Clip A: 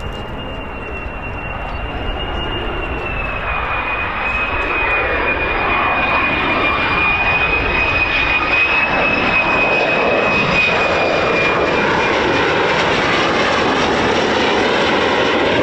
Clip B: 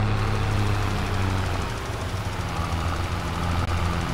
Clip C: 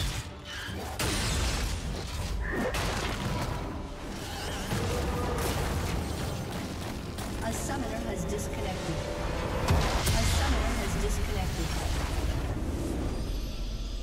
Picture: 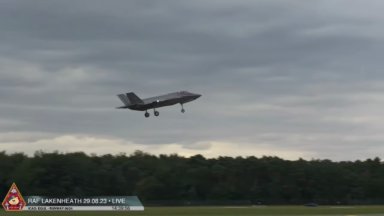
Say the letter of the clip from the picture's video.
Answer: A